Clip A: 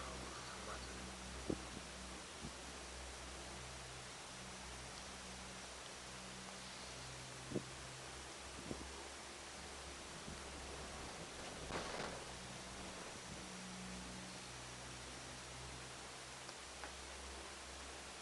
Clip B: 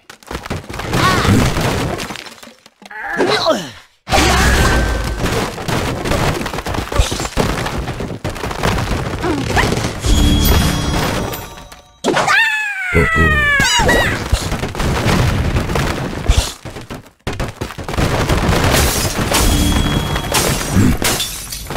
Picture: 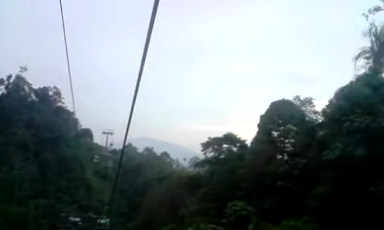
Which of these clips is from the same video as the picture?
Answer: A